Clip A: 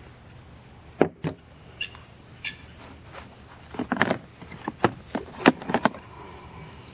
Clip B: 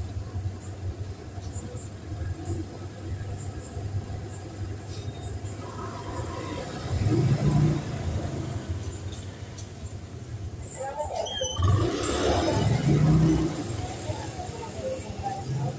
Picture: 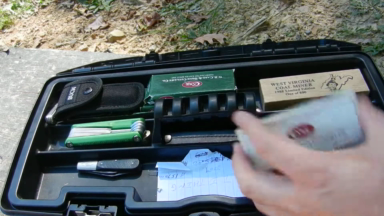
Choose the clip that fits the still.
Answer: A